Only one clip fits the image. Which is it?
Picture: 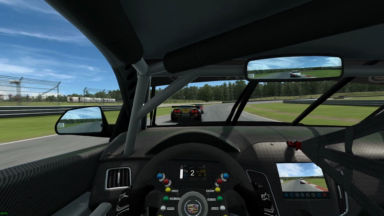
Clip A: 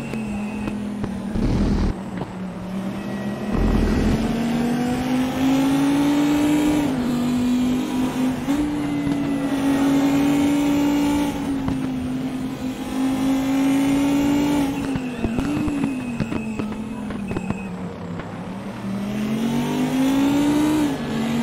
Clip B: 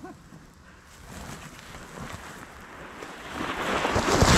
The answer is A